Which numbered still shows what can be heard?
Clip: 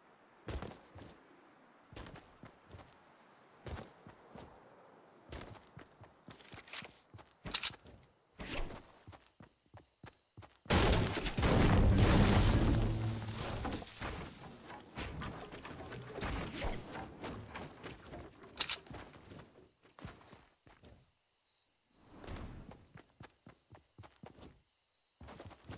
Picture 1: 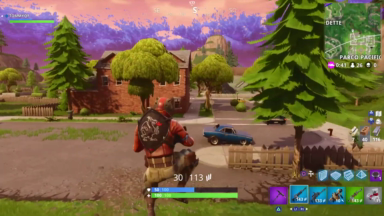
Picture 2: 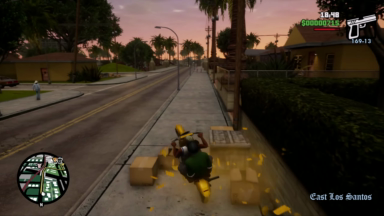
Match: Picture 1